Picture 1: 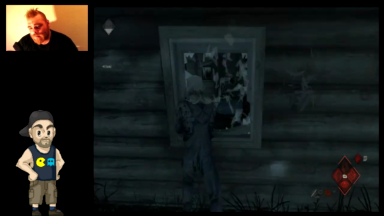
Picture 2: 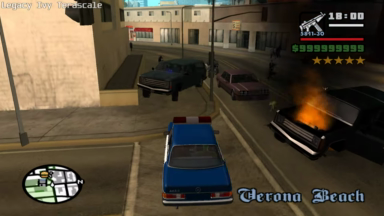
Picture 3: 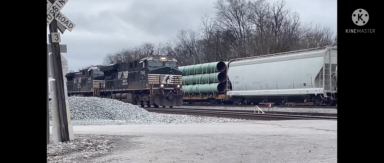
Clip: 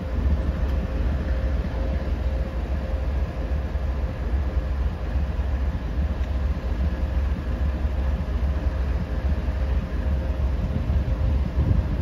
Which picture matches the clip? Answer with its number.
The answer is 3